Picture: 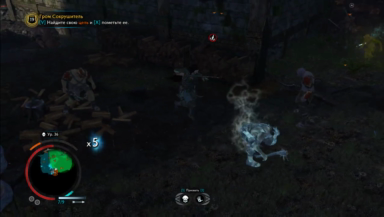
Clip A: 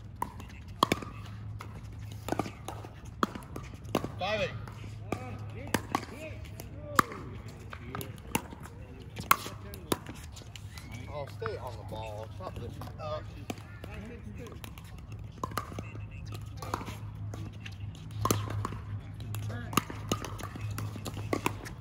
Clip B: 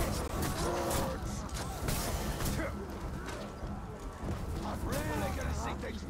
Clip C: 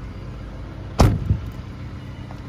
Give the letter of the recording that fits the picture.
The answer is B